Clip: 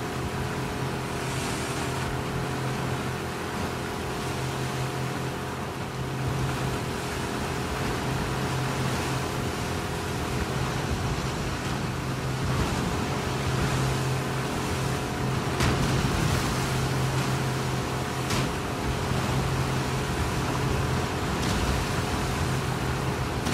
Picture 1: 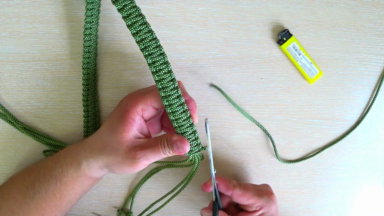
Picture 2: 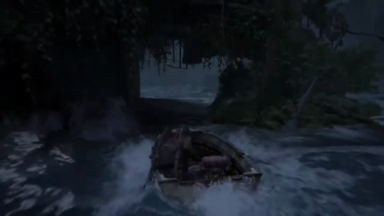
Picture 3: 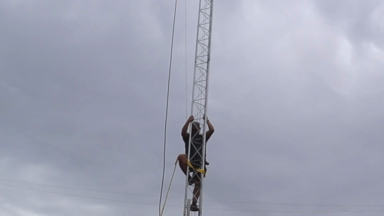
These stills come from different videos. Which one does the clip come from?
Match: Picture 2